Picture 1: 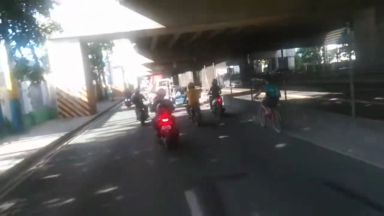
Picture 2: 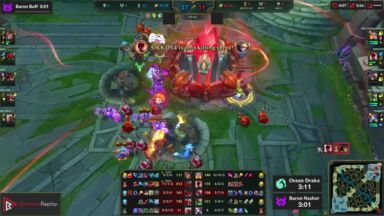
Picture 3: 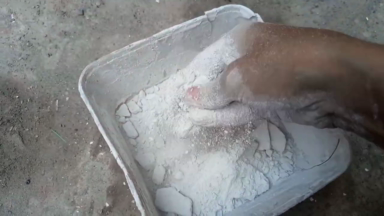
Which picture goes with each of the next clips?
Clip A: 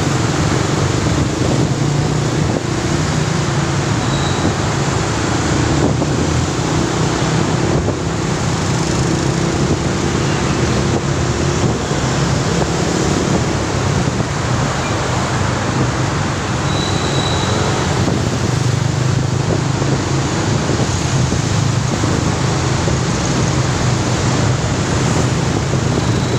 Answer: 1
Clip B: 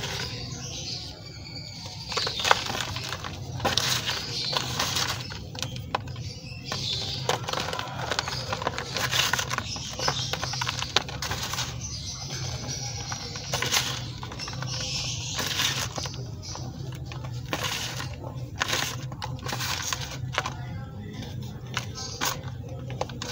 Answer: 3